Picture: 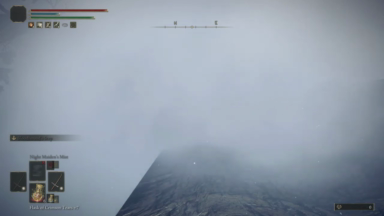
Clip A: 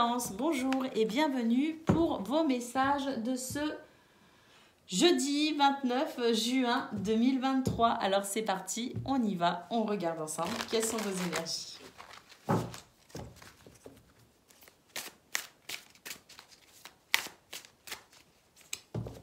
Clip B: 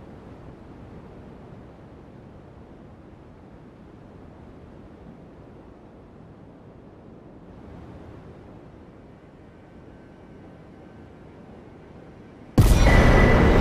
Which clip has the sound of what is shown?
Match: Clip B